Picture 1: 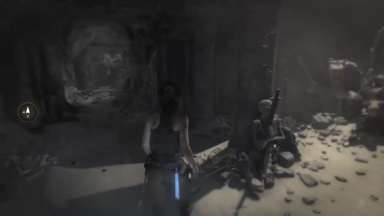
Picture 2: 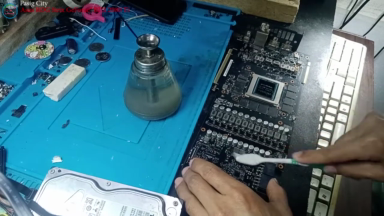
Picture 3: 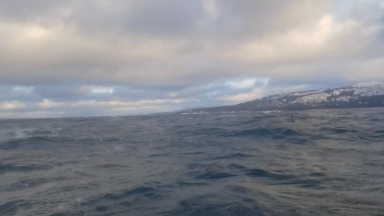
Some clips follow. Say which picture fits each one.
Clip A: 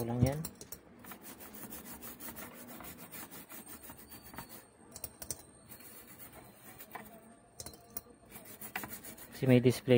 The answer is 2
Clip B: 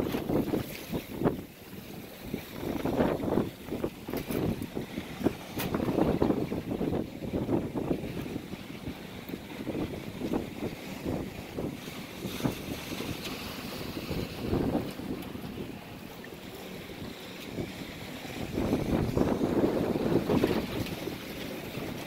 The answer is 3